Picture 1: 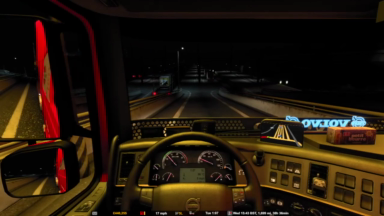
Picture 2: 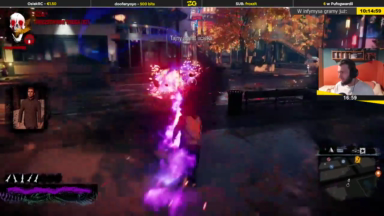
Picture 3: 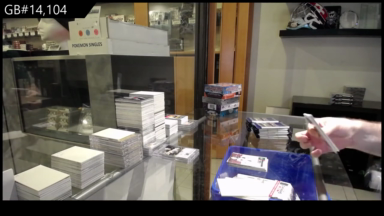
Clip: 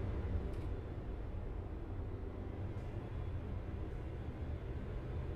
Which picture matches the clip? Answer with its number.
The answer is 1